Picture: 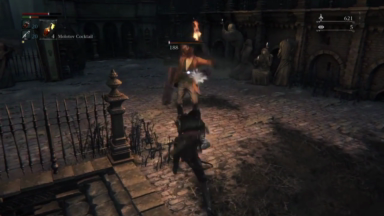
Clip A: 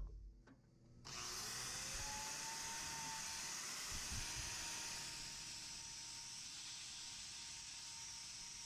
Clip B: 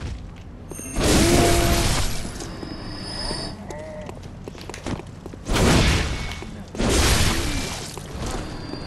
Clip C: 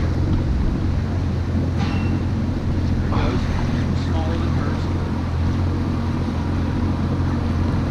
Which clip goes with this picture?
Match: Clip B